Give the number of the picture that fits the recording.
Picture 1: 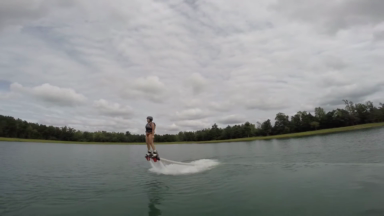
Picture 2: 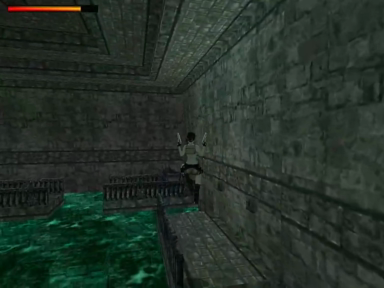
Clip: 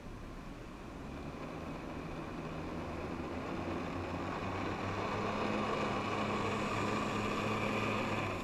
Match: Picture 1